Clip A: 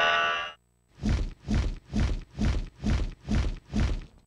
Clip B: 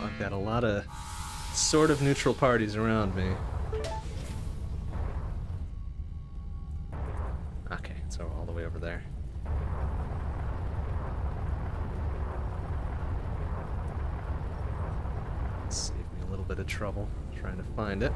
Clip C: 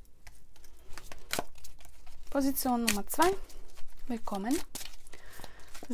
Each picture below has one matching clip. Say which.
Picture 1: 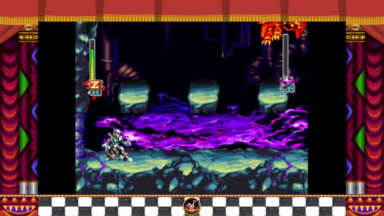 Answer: A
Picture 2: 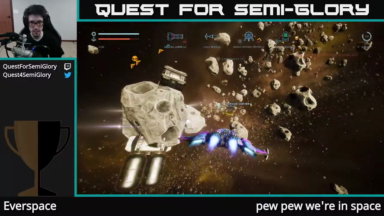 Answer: B